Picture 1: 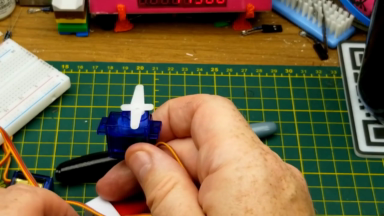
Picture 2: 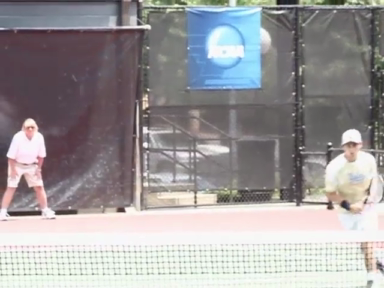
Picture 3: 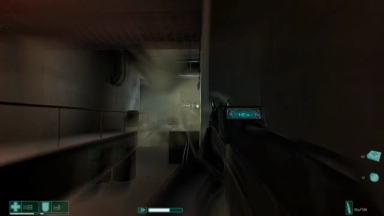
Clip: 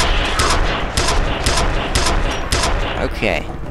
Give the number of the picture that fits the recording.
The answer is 3